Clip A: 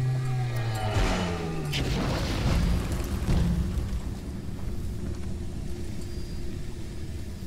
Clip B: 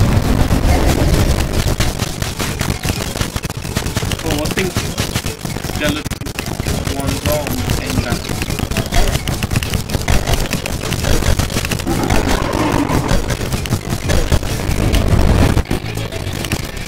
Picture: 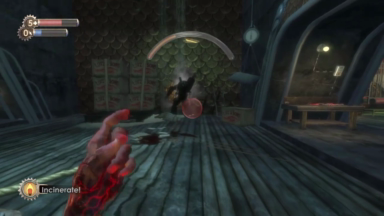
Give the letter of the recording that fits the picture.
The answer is A